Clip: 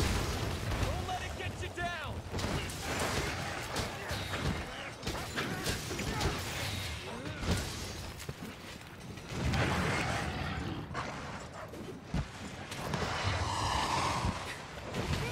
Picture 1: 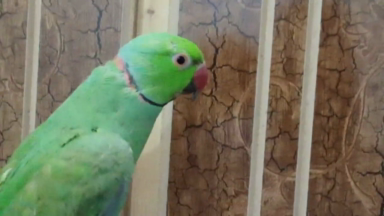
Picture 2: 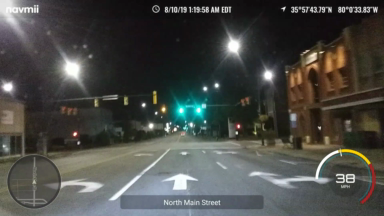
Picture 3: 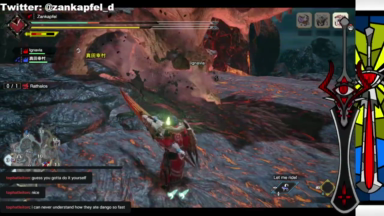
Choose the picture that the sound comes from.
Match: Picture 3